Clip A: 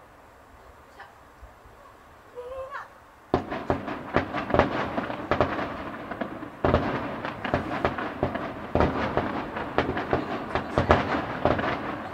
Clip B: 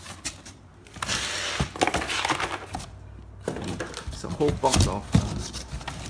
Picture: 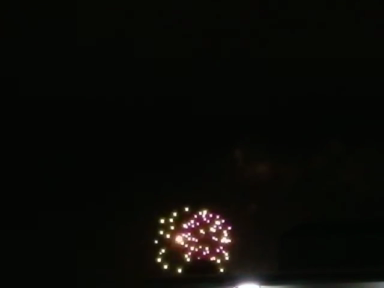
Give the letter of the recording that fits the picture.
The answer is A